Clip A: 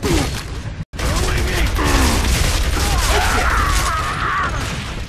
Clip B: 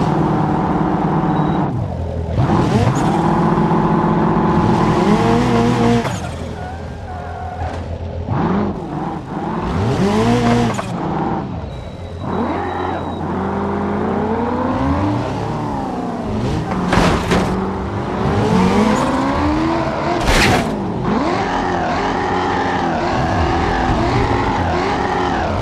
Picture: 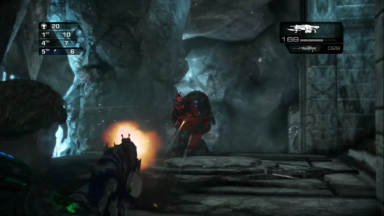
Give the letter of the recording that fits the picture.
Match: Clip A